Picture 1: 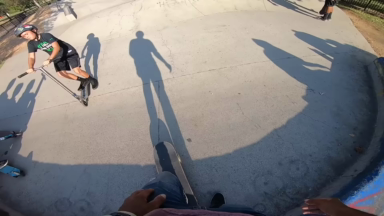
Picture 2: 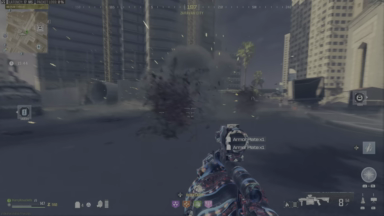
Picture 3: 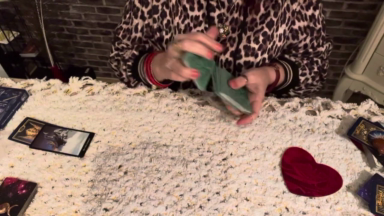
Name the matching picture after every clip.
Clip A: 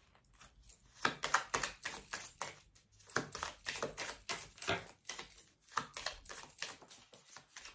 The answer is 3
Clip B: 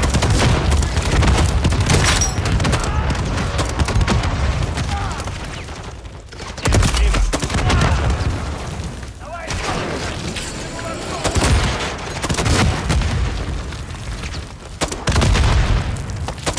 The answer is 2